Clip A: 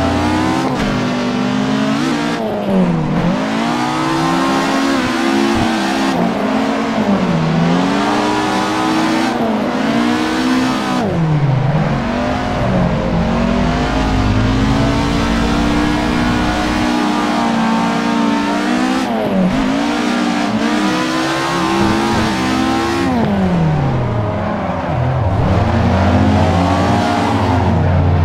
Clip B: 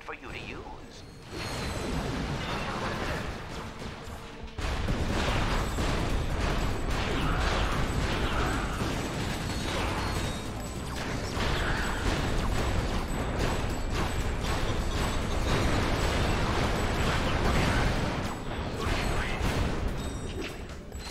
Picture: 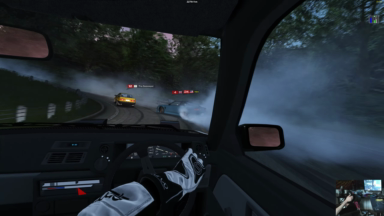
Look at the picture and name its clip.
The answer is A